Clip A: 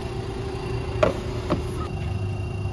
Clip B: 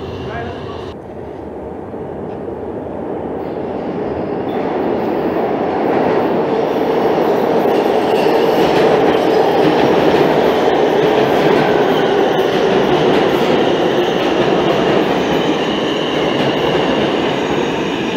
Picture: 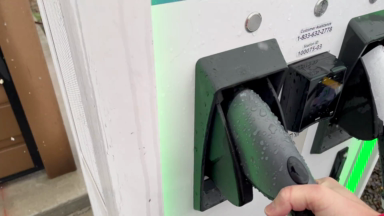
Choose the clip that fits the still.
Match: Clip A